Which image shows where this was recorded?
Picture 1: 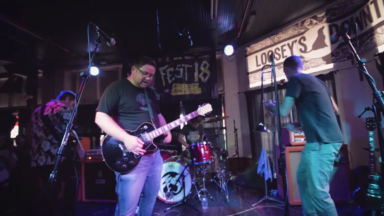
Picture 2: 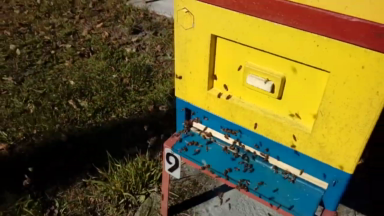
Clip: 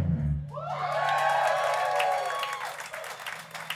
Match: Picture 1